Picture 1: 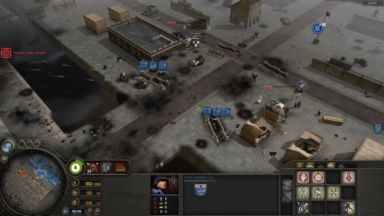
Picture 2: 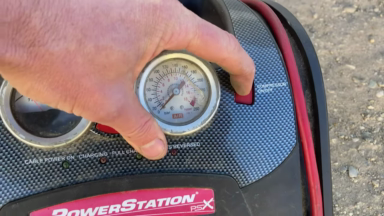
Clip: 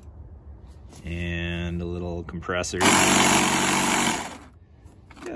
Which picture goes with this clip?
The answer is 2